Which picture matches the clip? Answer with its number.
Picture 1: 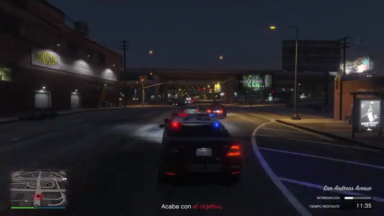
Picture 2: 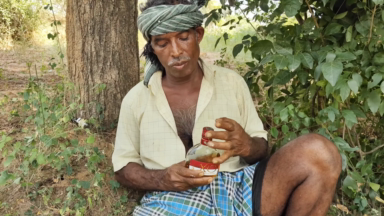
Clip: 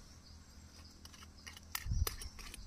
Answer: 2